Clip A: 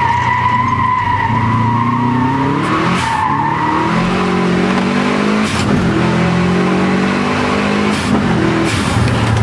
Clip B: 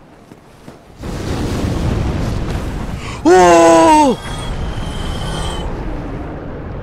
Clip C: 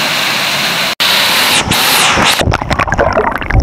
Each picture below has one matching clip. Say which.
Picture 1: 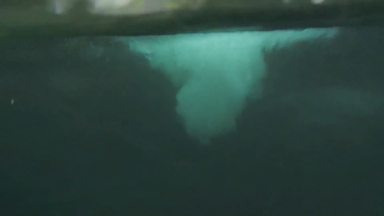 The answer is C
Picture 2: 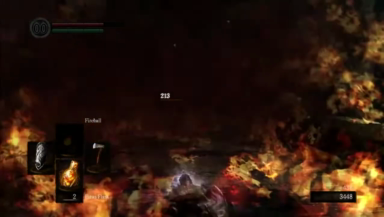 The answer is B